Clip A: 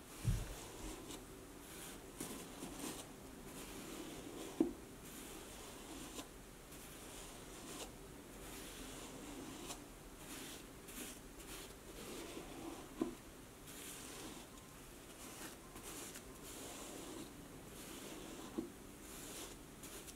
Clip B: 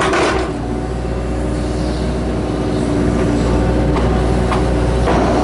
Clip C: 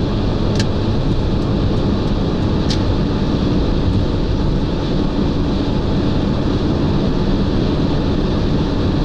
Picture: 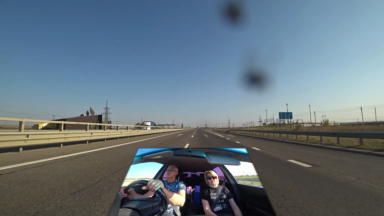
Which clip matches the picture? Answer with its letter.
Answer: C